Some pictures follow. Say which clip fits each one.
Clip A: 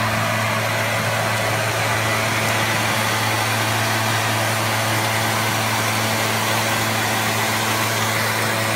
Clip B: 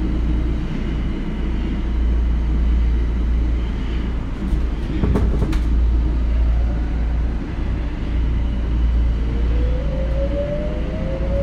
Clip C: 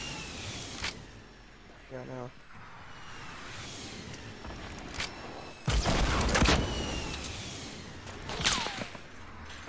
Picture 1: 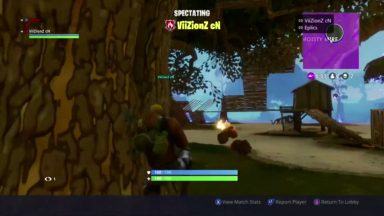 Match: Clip C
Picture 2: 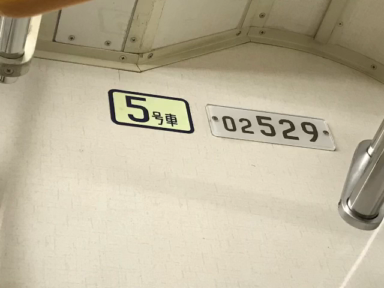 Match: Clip B